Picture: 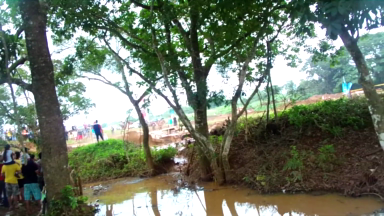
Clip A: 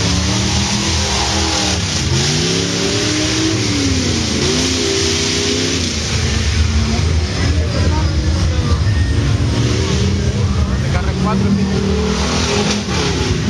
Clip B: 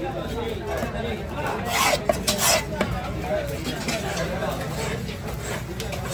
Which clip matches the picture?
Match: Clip A